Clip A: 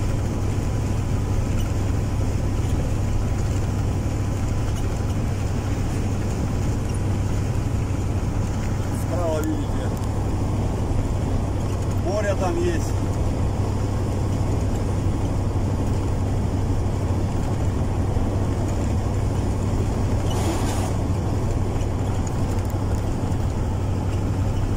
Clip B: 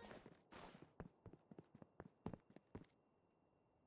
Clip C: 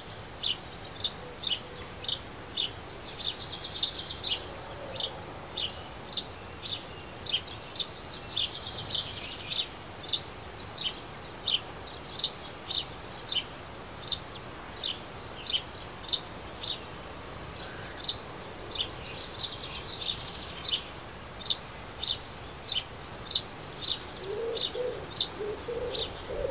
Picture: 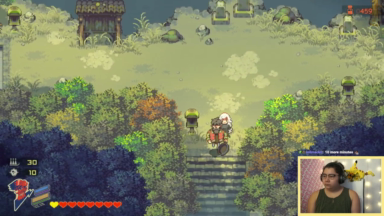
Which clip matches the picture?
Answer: B